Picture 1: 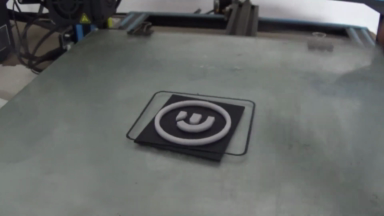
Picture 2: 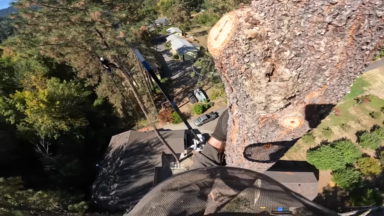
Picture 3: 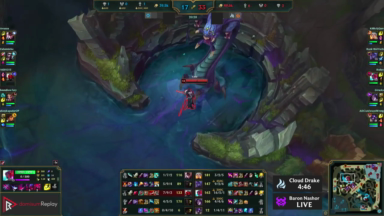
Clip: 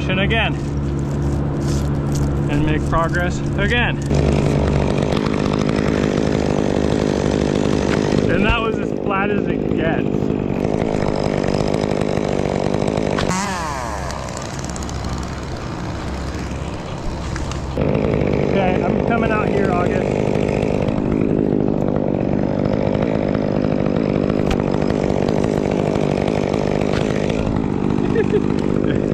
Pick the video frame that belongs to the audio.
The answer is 2